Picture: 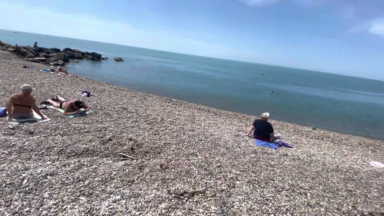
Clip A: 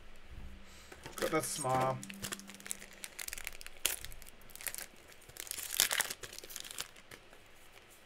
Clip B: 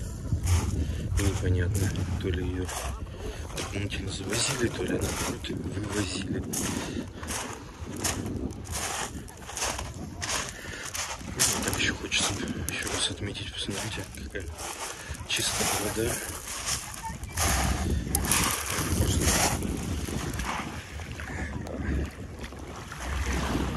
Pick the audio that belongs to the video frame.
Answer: B